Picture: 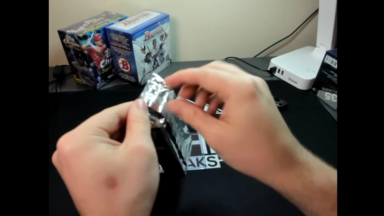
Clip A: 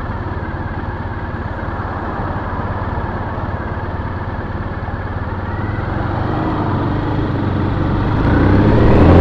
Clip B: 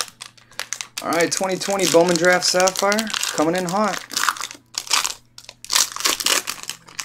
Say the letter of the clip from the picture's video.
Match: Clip B